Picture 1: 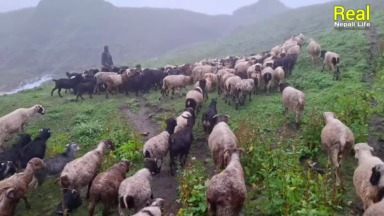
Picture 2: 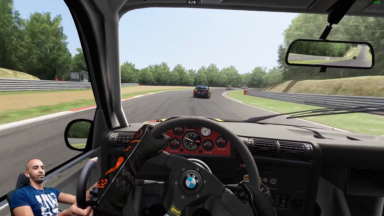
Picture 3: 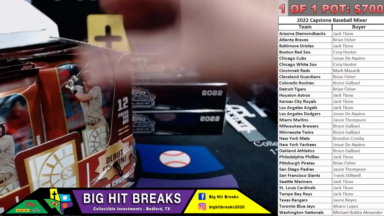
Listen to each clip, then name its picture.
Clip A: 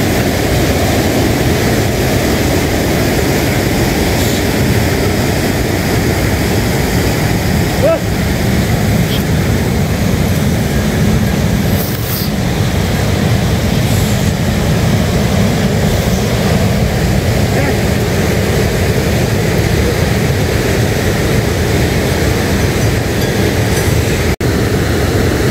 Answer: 1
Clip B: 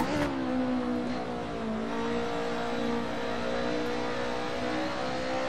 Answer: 2